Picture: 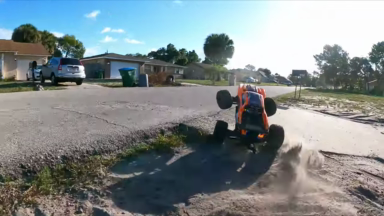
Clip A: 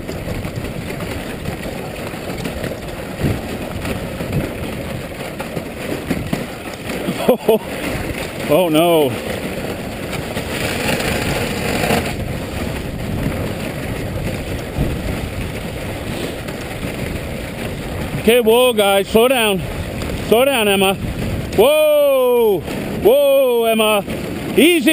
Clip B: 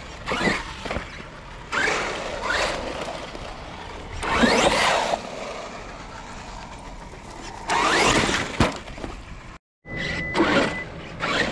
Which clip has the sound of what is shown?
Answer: B